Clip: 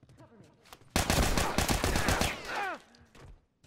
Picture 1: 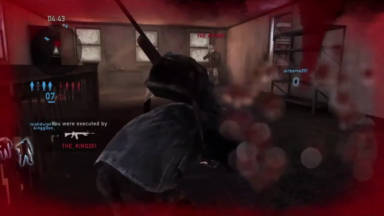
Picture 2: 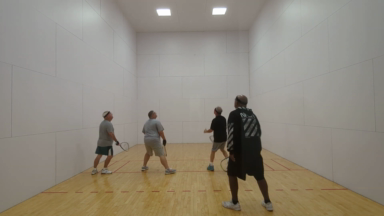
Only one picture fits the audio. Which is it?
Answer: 1